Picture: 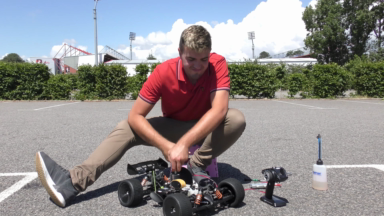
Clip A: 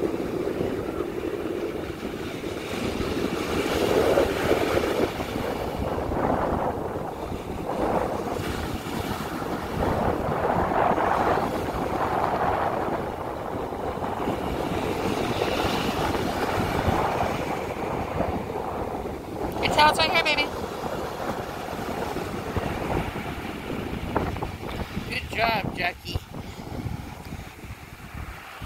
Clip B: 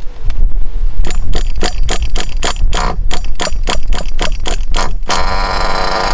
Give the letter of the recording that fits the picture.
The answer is B